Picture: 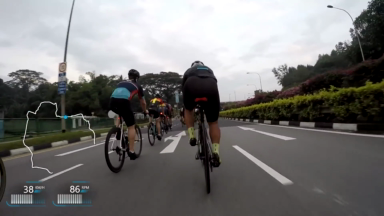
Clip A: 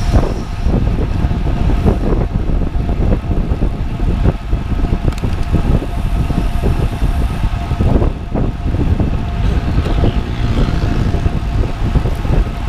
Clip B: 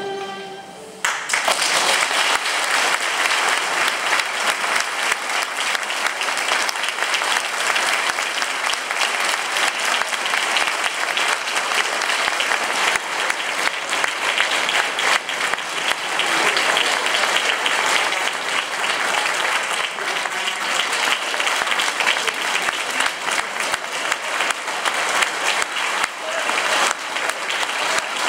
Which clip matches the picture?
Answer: A